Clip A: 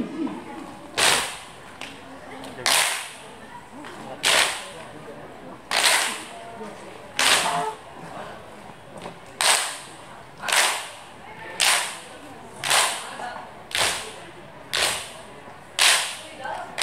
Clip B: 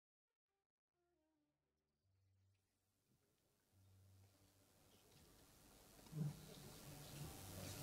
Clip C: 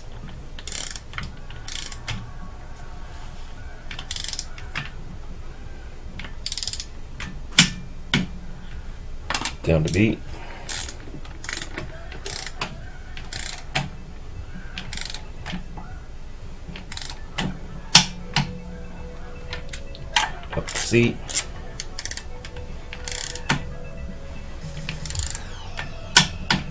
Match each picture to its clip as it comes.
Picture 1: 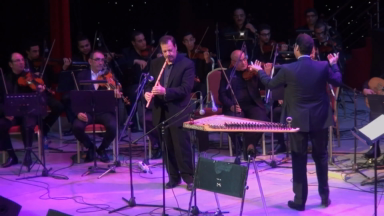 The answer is B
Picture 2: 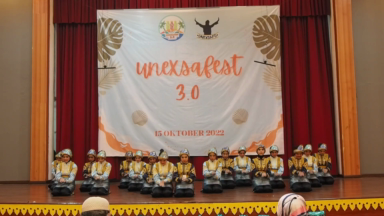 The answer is A